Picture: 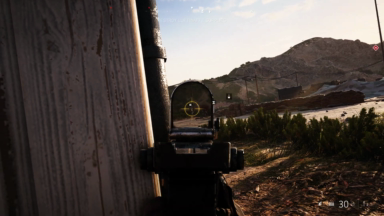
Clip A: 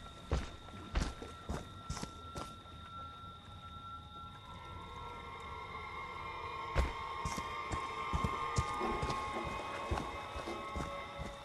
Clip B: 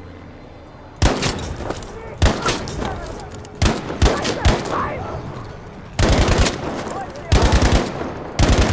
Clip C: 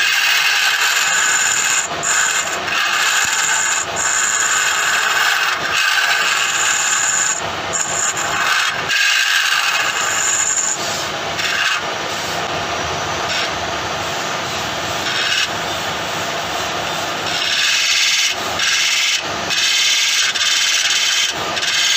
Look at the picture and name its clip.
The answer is B